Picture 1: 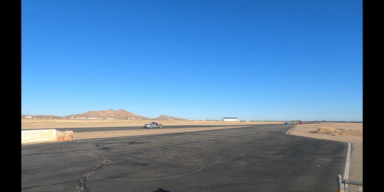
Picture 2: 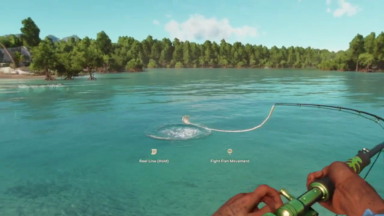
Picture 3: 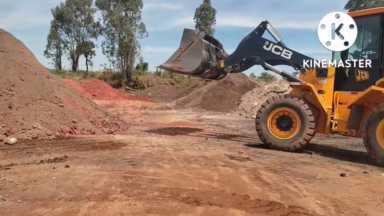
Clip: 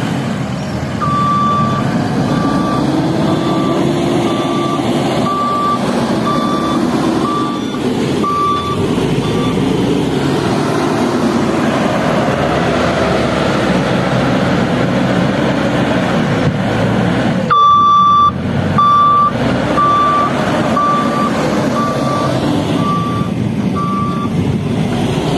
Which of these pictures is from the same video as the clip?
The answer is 3